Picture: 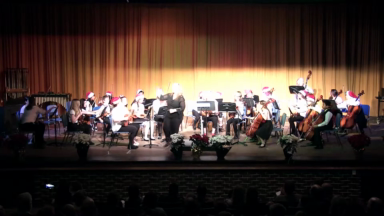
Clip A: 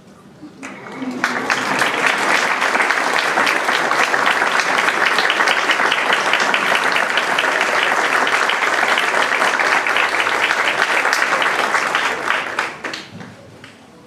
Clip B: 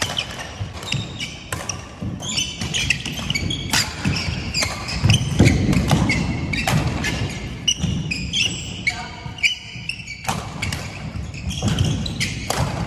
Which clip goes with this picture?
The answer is A